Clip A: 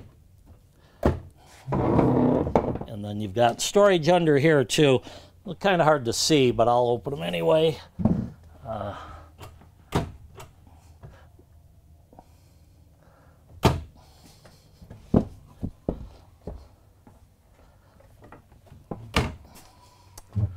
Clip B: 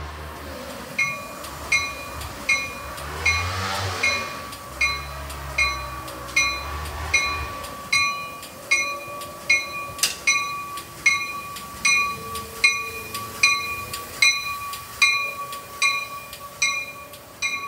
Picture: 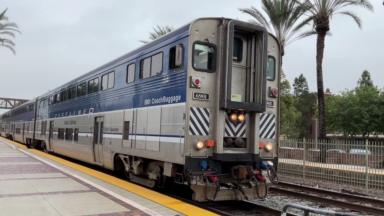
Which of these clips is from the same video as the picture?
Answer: B